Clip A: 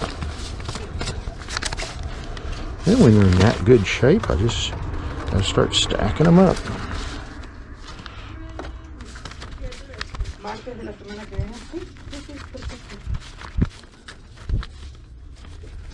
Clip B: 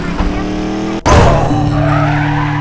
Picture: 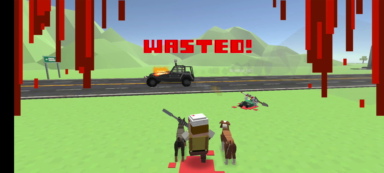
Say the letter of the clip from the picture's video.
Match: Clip B